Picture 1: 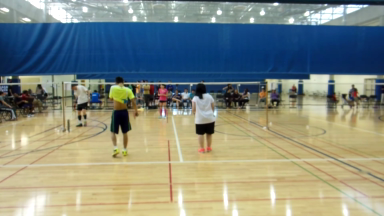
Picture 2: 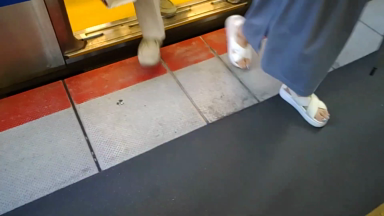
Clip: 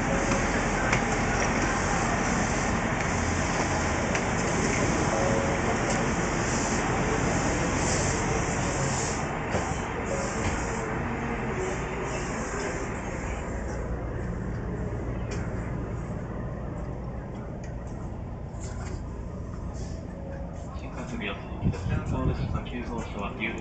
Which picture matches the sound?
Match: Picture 2